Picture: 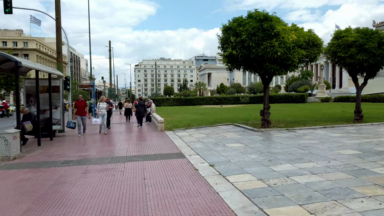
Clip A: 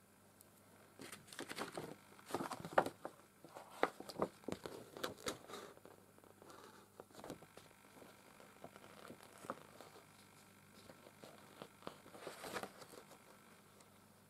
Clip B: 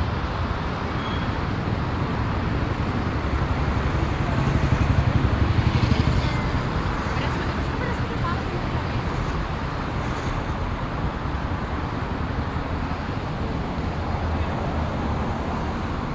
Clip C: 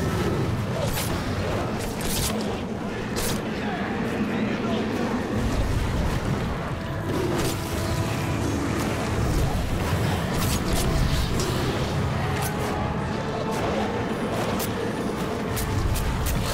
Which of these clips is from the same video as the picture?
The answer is B